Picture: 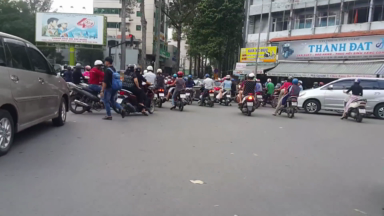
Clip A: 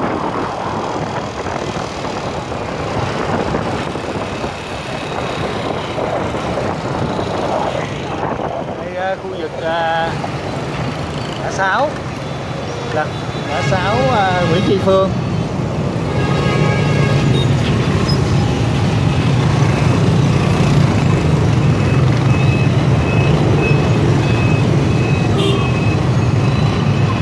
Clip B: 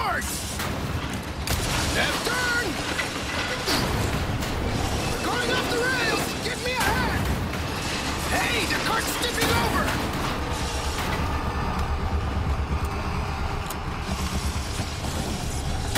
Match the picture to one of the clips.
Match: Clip A